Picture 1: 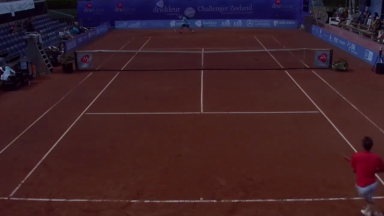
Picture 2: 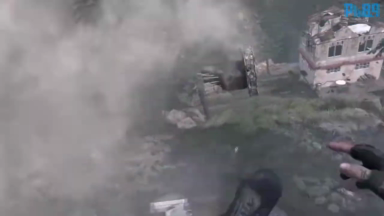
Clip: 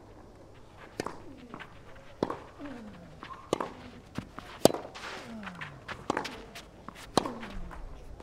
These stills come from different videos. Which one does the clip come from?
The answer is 1